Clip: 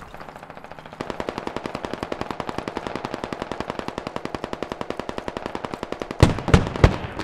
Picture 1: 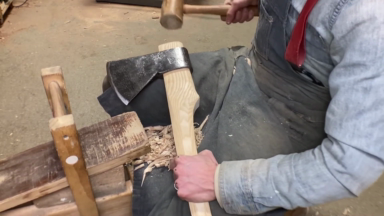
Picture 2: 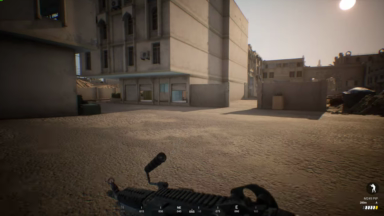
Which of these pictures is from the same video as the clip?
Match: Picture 2